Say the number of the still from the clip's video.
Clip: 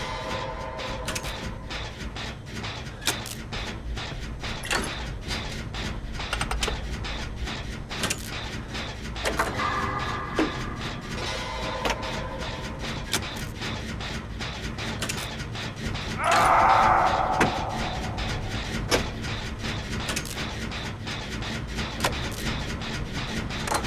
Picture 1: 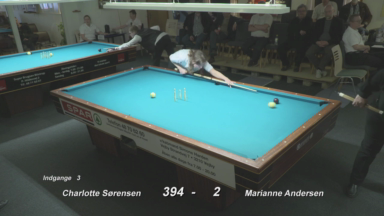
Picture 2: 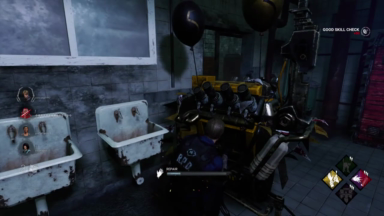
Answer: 2